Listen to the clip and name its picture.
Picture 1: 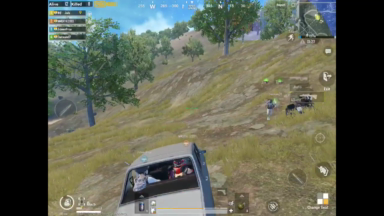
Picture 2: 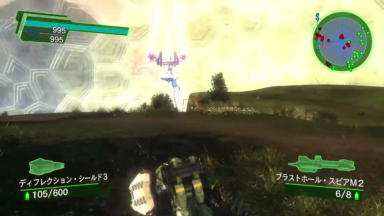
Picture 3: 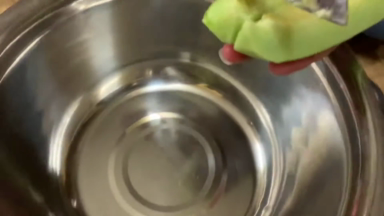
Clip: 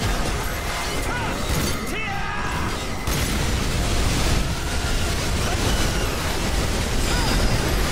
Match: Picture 2